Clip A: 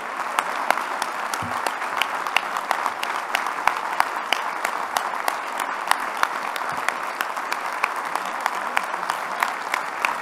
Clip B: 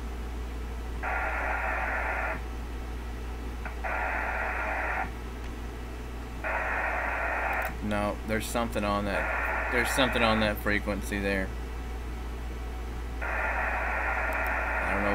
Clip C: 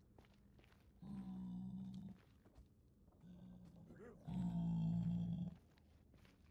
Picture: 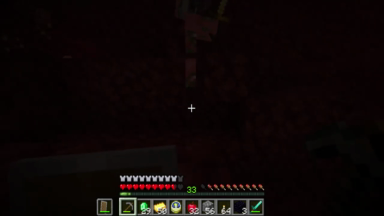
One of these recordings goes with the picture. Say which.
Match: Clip C